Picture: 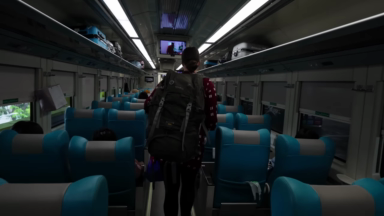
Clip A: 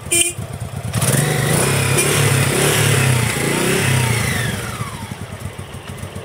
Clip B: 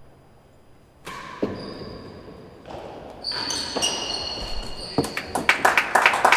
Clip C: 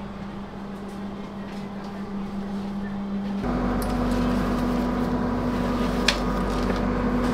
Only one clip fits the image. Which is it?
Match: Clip C